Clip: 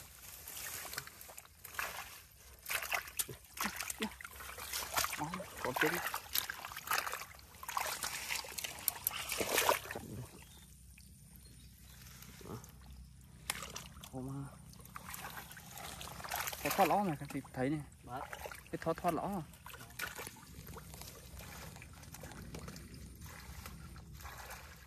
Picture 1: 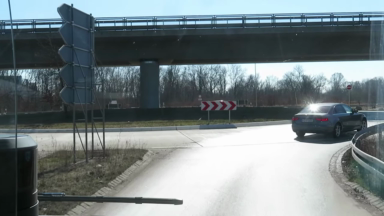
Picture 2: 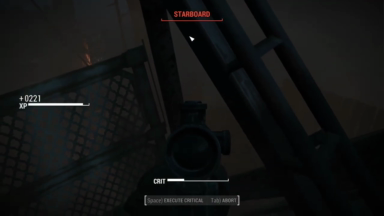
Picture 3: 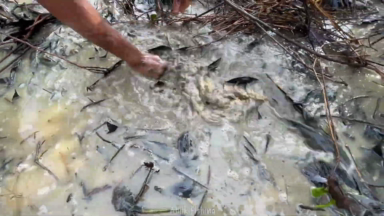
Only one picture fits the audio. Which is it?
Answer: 3